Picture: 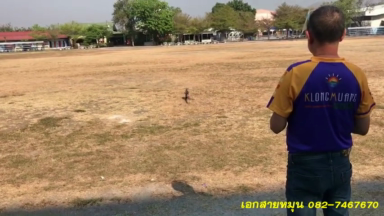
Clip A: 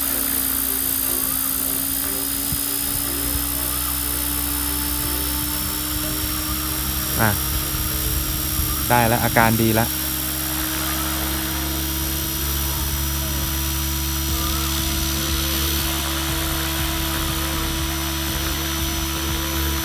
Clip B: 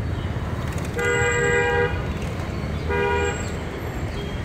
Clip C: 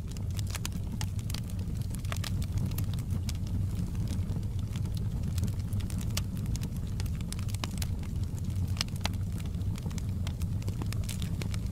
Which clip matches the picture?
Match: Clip A